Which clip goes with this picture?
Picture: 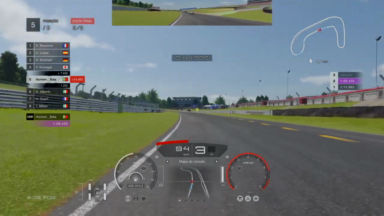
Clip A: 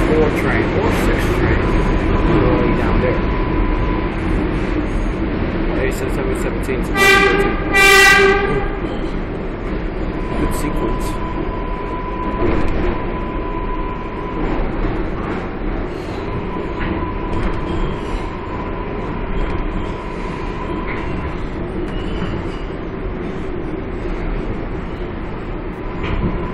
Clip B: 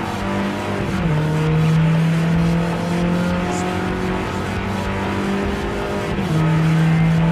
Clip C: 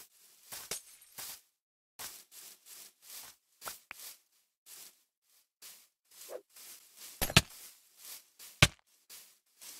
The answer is B